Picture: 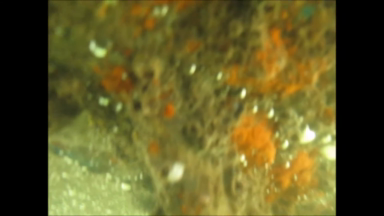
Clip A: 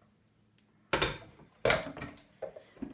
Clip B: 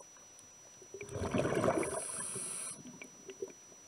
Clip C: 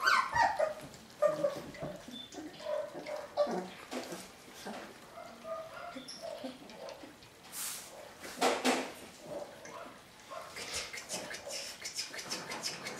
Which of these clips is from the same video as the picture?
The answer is B